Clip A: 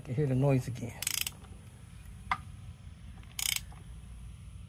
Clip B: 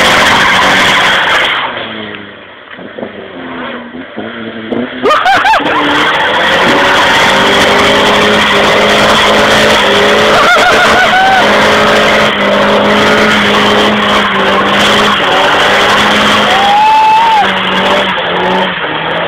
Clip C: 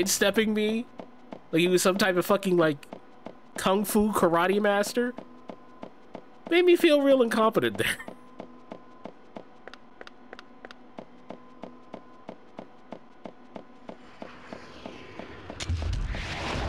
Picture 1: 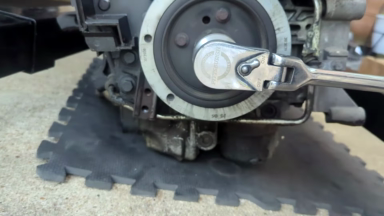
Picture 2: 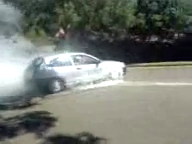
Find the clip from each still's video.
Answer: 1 A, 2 B